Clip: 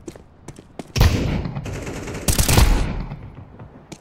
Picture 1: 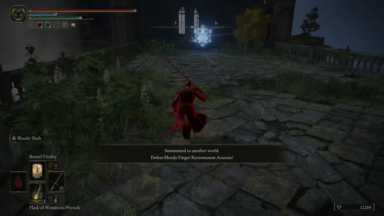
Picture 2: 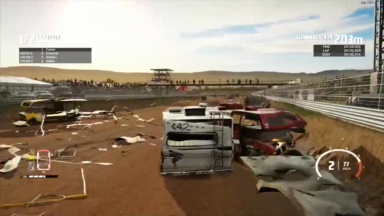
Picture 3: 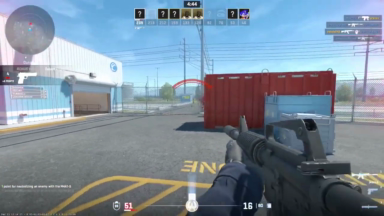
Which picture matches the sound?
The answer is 3